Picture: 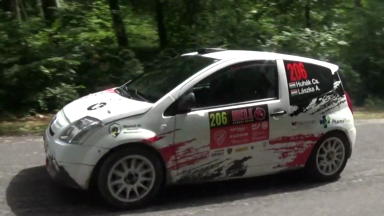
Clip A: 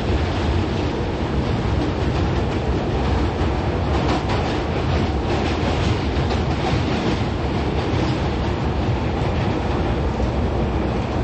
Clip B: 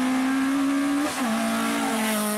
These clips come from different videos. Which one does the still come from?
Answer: B